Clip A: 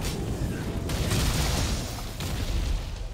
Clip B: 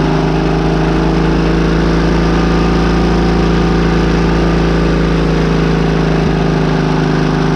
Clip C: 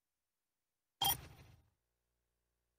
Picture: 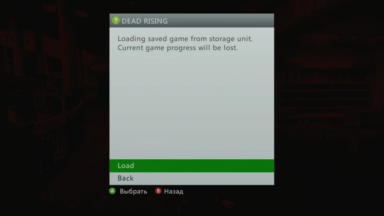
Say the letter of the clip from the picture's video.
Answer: C